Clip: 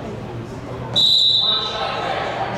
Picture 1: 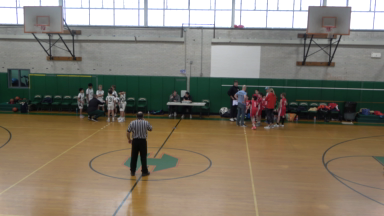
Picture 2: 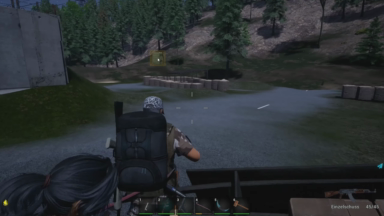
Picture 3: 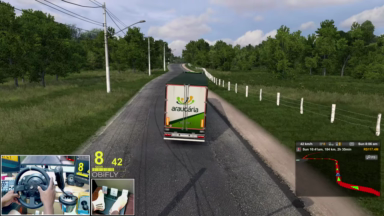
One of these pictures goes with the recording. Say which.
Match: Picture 1